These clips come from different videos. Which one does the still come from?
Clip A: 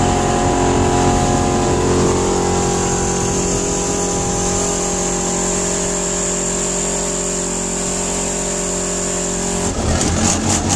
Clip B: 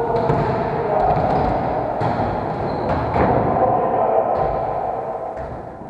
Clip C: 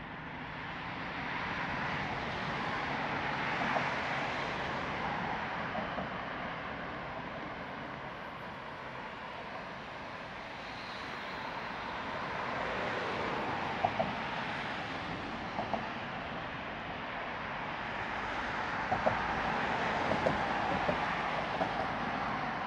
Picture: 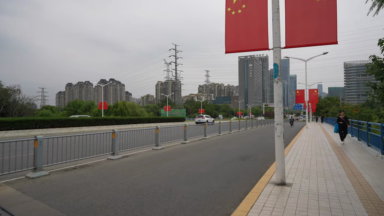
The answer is C